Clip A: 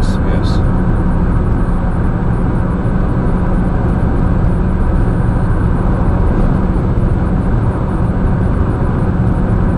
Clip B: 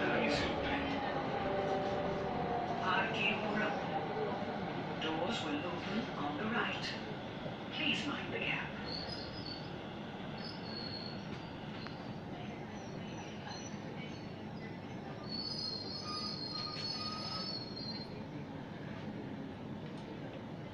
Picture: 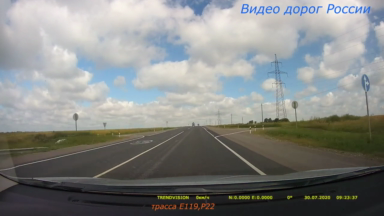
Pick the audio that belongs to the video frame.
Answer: A